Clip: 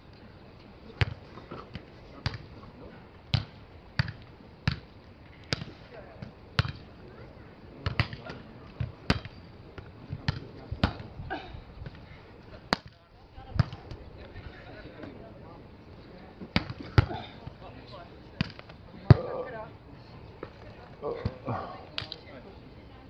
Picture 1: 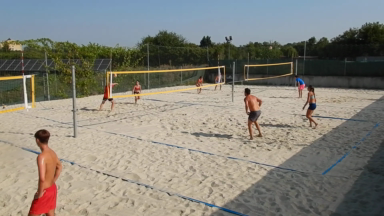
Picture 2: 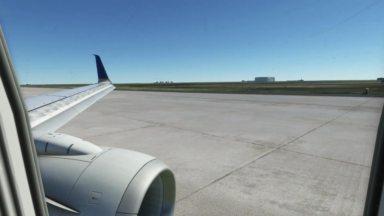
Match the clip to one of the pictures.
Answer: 1